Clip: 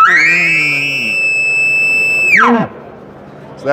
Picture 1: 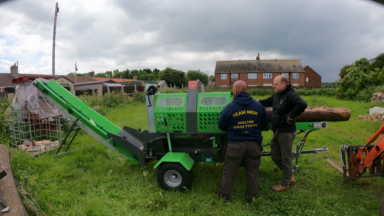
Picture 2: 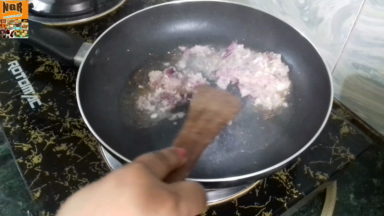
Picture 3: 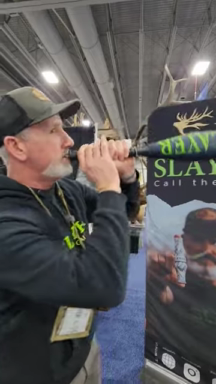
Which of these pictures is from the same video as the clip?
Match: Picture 3